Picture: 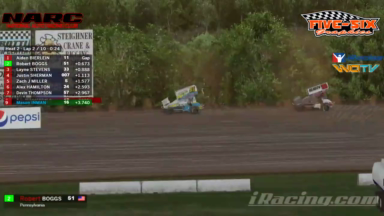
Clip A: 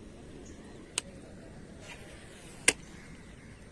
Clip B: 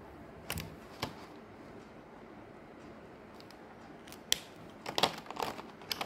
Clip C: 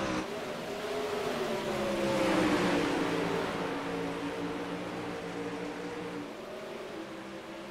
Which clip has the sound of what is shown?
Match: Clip C